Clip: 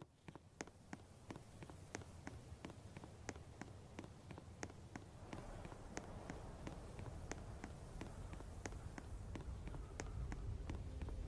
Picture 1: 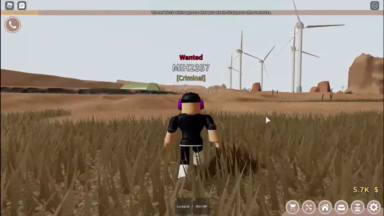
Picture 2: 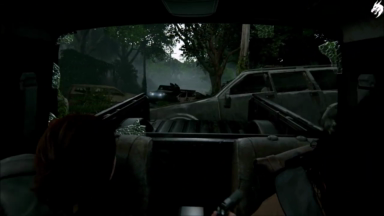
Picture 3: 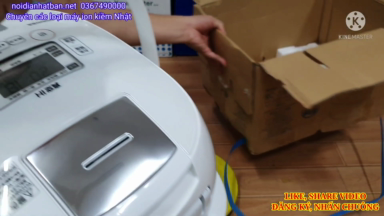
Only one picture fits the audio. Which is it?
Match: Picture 1